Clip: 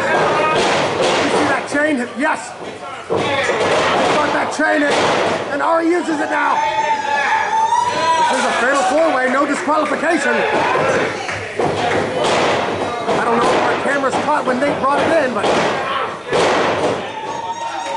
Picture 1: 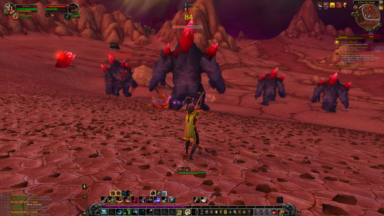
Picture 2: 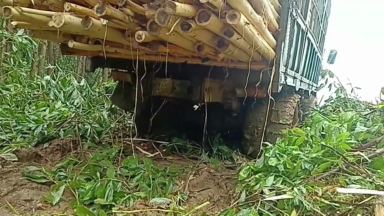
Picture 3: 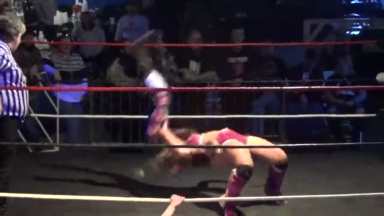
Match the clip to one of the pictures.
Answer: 3